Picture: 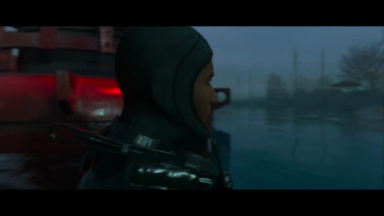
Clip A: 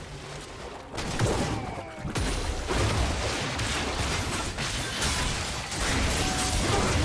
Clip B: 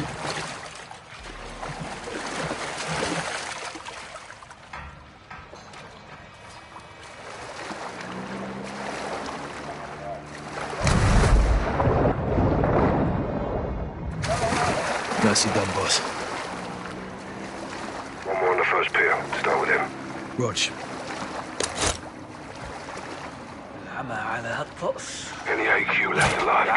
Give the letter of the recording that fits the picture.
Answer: B